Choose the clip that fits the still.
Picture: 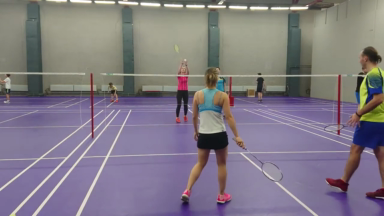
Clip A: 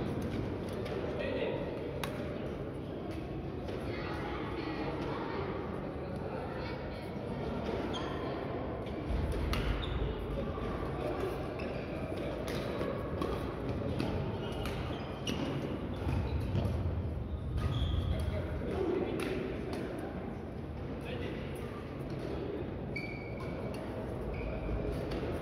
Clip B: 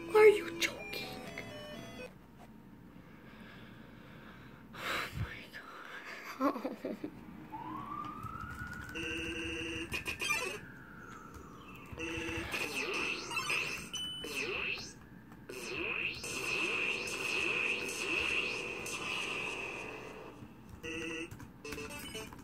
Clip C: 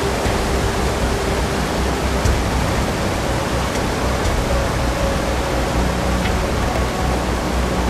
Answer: A